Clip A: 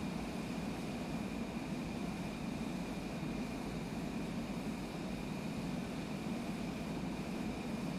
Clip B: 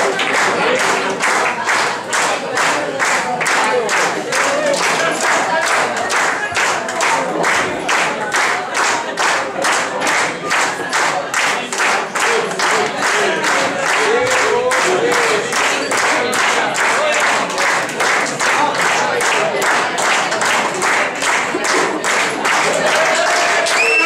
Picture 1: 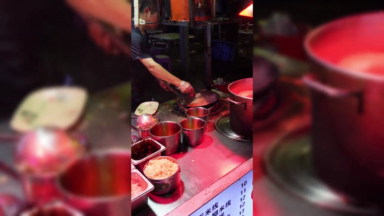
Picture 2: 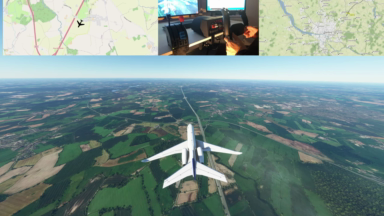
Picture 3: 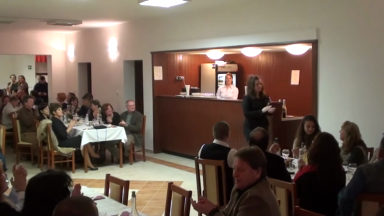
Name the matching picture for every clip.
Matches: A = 2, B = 3